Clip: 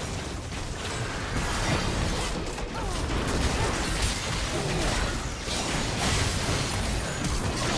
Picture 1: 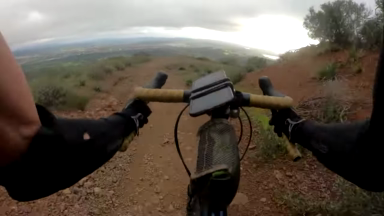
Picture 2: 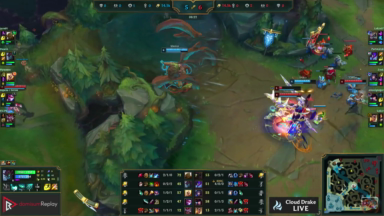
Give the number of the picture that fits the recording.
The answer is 2